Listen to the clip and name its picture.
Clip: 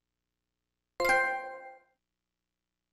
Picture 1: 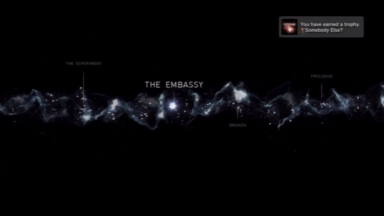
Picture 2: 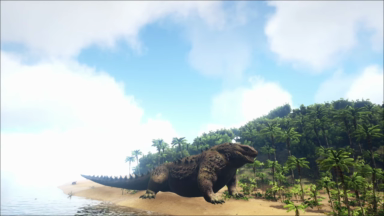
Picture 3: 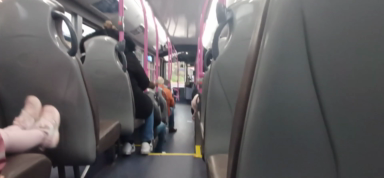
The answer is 1